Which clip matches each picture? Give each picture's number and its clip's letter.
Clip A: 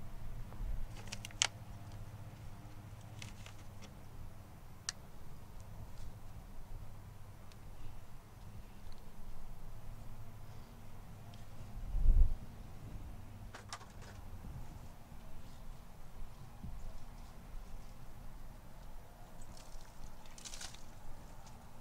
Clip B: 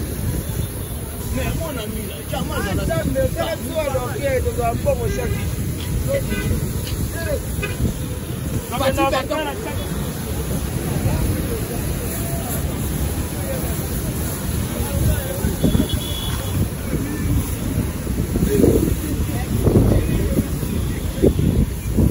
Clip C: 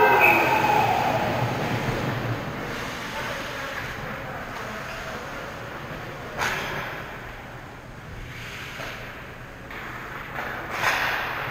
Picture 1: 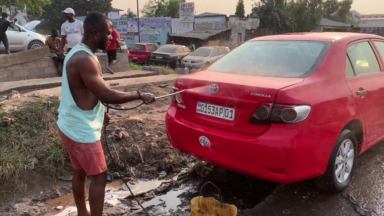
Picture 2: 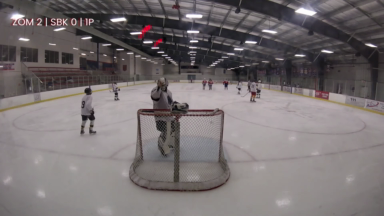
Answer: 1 B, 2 C